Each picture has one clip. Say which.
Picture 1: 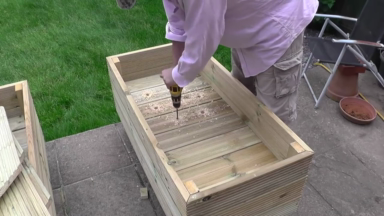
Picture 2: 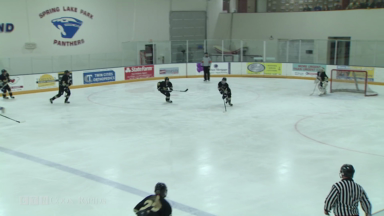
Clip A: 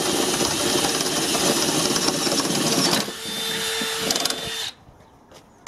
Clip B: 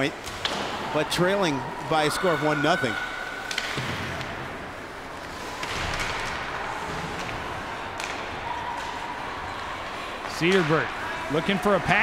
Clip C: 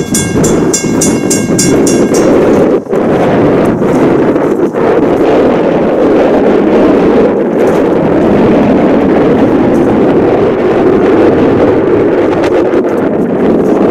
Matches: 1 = A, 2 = B